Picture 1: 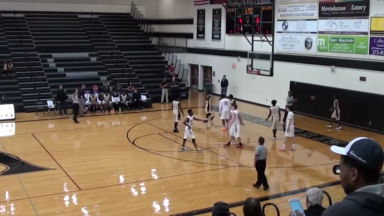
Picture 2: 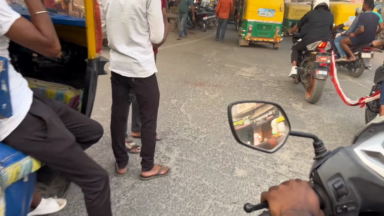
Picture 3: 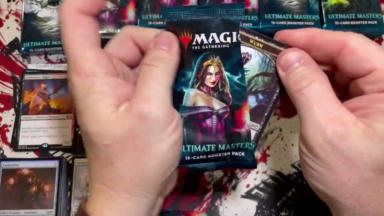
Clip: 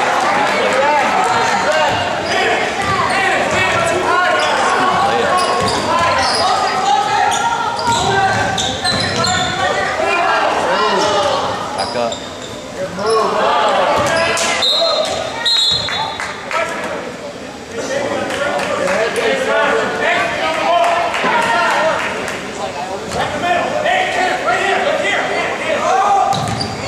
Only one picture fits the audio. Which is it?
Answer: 1